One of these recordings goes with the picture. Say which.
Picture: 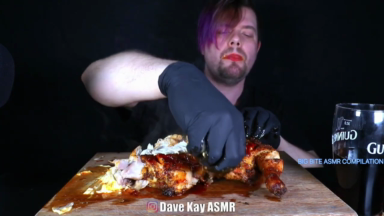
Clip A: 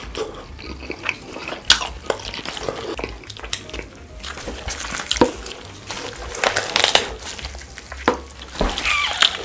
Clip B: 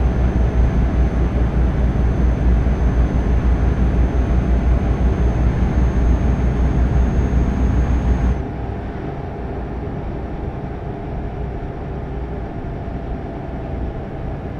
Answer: A